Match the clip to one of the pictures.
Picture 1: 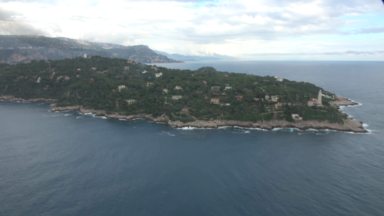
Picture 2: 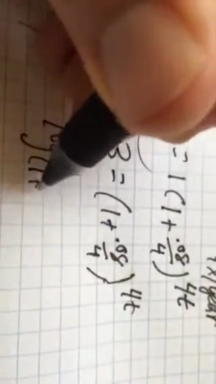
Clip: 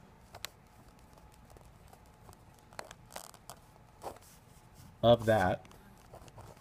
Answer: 2